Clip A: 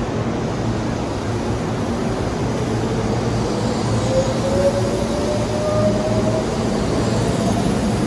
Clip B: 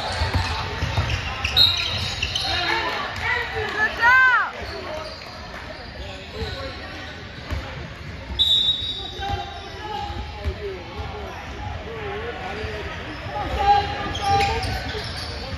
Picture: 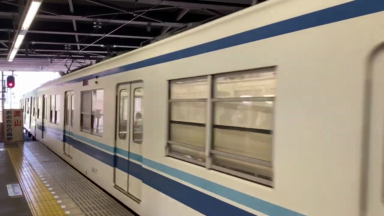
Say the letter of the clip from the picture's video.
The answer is A